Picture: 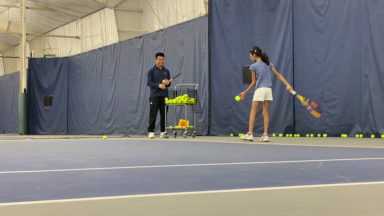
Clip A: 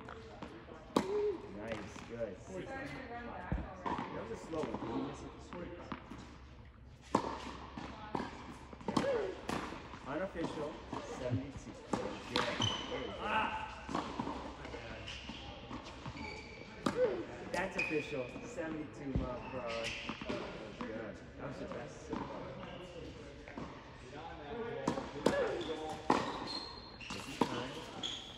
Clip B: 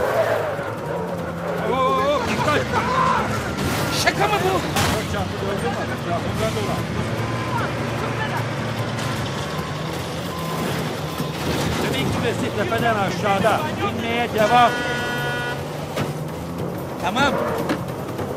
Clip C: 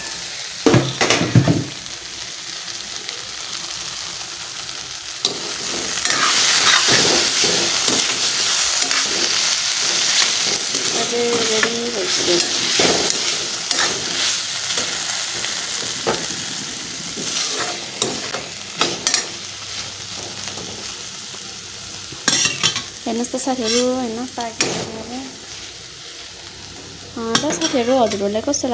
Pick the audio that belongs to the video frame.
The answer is A